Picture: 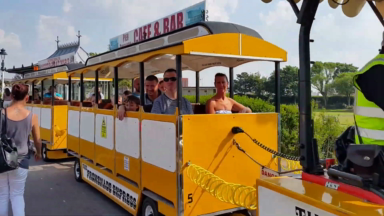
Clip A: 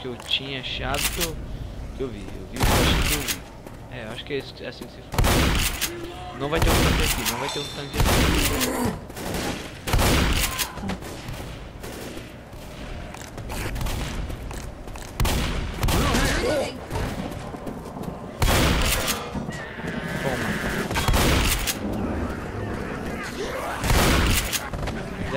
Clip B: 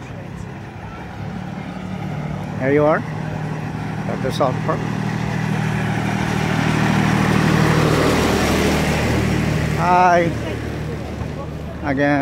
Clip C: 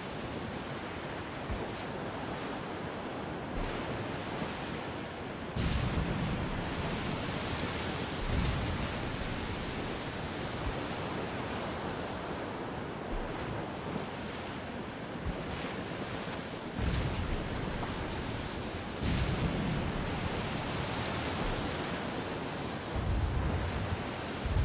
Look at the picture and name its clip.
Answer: B